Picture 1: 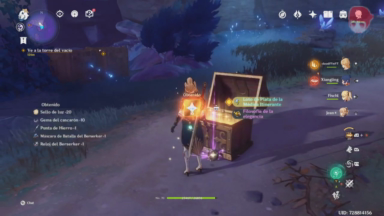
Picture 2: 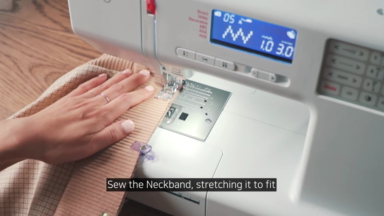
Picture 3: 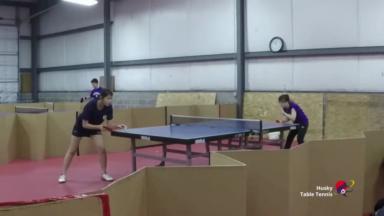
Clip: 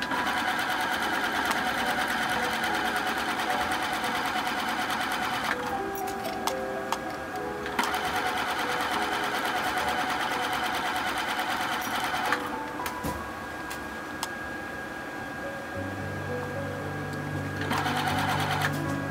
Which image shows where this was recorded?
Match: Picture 2